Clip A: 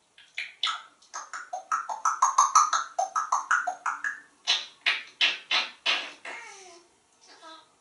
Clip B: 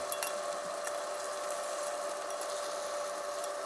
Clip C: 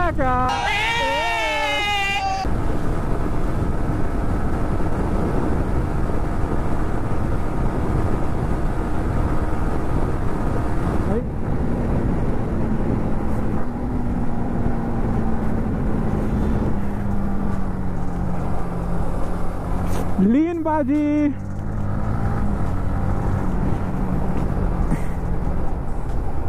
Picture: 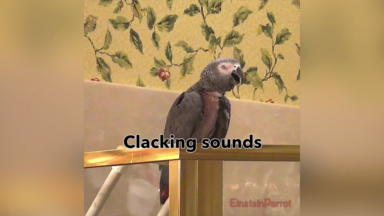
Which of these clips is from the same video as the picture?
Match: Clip A